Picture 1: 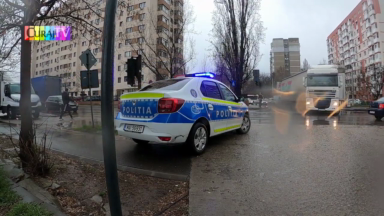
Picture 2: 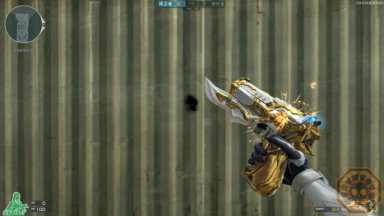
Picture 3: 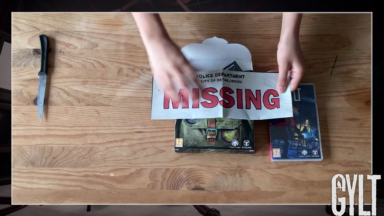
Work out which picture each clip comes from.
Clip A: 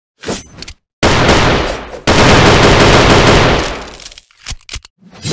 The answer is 2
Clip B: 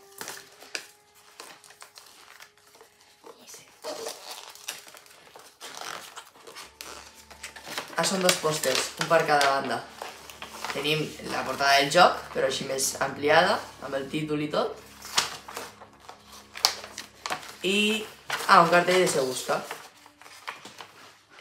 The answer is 3